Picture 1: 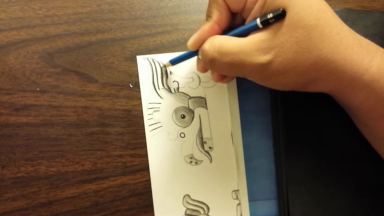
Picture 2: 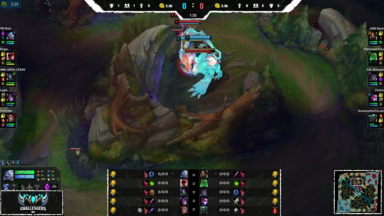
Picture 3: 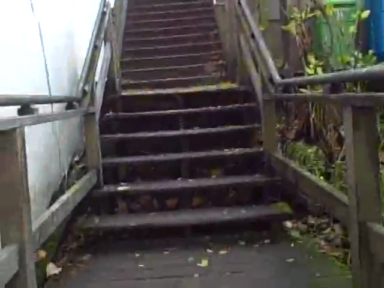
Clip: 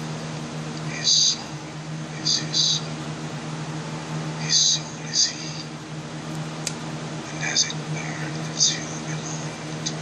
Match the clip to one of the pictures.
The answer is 1